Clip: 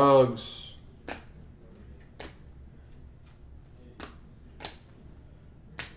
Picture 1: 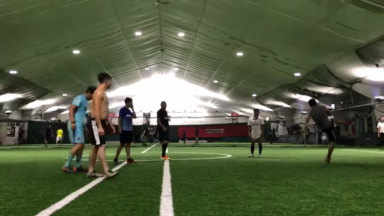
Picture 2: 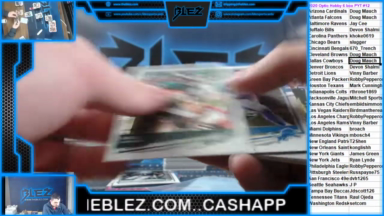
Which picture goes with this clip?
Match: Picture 2